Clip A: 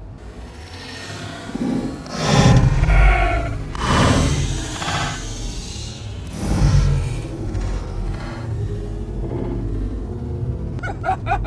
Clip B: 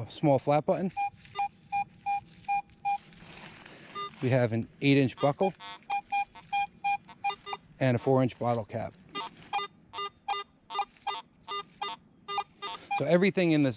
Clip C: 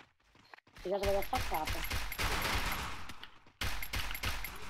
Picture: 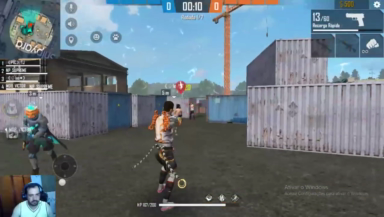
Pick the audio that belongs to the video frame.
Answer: C